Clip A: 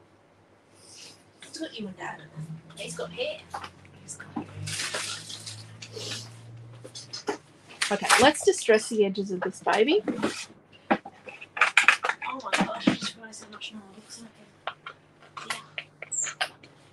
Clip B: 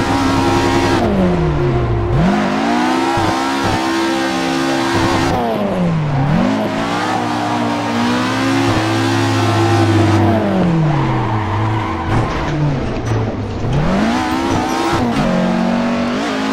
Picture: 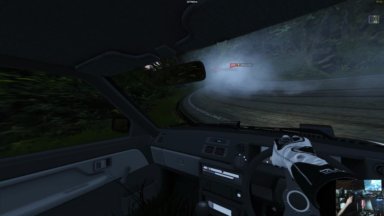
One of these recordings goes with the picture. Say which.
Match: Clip B